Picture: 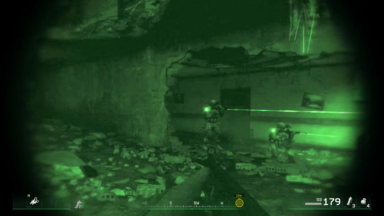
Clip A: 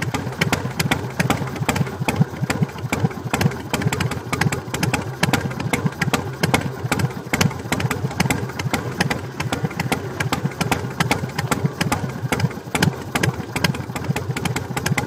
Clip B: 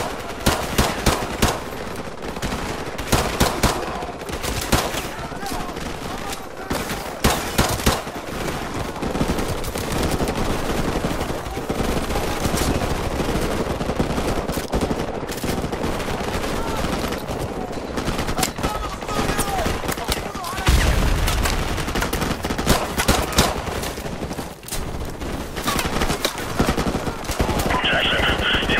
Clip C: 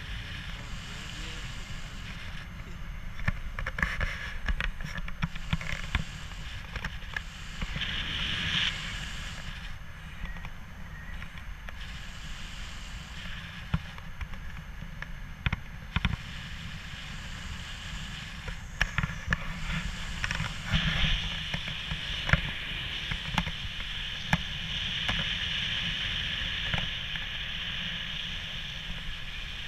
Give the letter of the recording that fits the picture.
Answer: B